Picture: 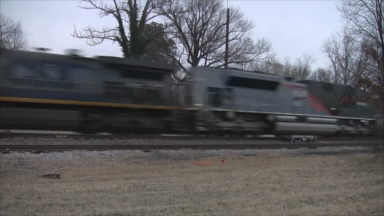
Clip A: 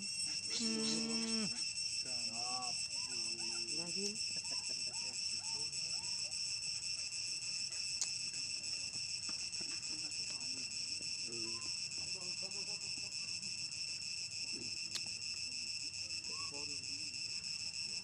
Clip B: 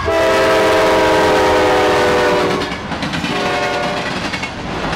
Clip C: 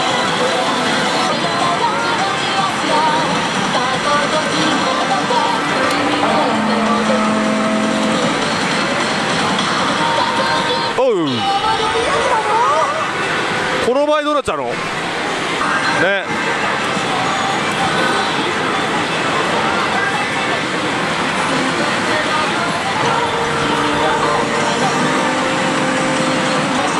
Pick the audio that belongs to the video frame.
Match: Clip B